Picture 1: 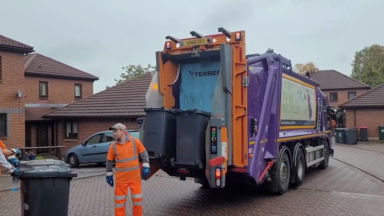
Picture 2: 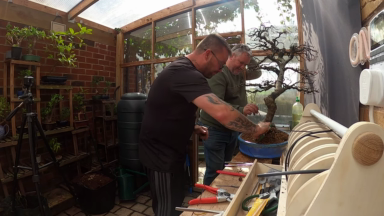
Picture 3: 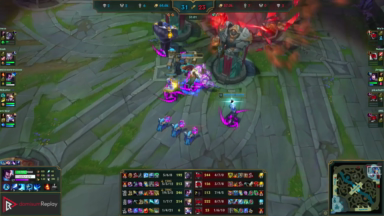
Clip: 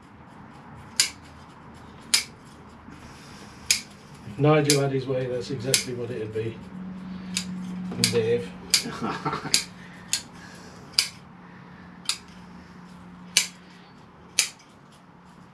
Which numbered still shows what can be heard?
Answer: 2